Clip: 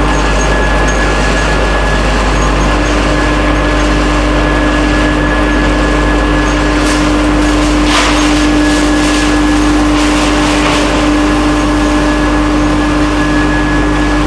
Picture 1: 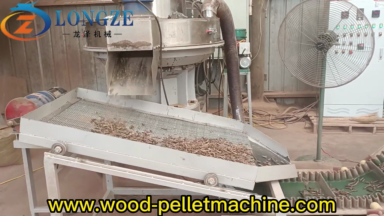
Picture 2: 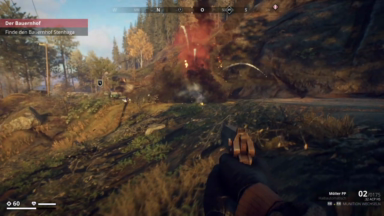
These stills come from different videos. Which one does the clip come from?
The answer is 1